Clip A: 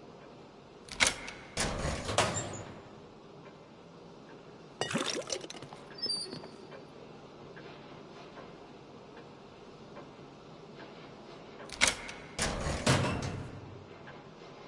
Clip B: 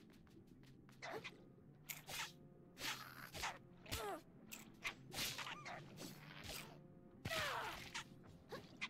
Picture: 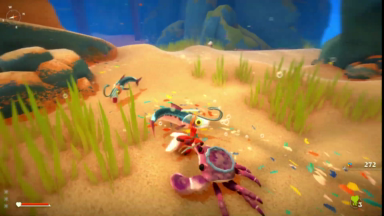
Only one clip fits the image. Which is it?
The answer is B